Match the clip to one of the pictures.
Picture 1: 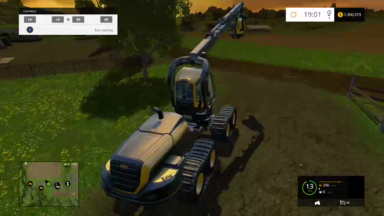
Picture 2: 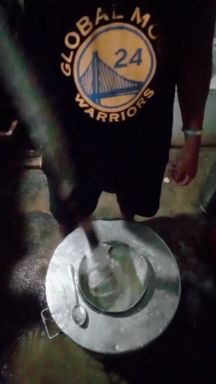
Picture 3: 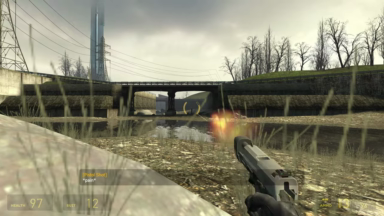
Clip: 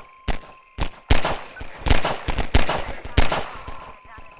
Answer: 3